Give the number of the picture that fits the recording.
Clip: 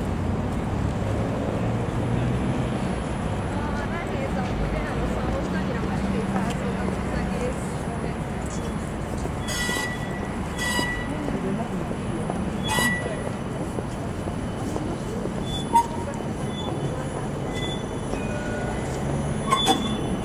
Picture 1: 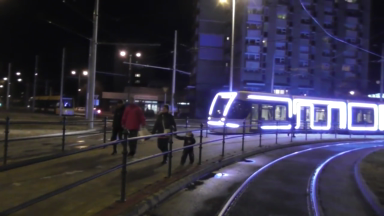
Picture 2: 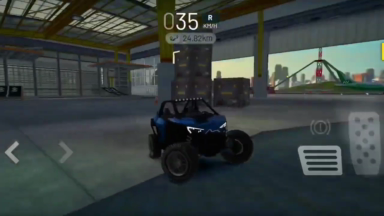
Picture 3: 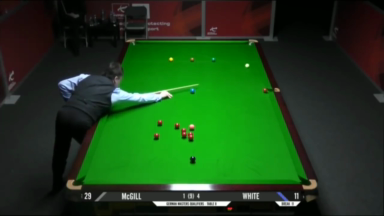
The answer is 1